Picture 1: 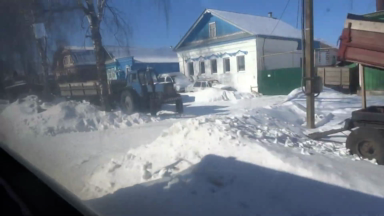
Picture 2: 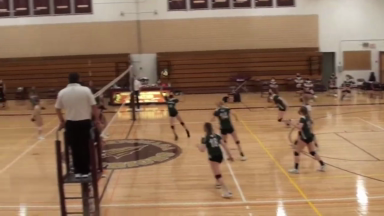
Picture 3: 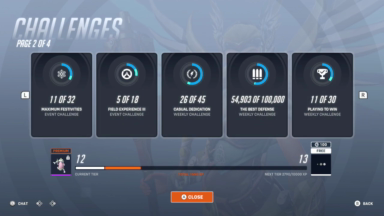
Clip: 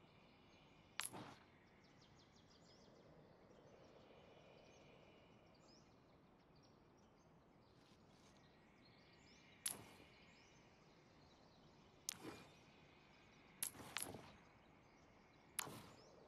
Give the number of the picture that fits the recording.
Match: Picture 3